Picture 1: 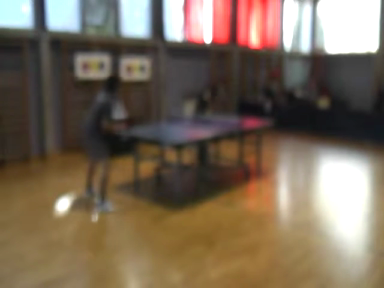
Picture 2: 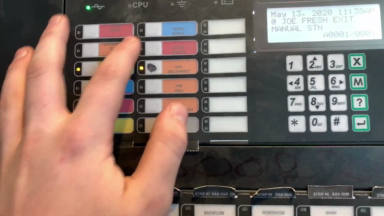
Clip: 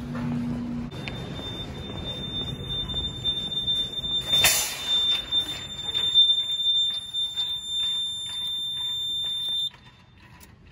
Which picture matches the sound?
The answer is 2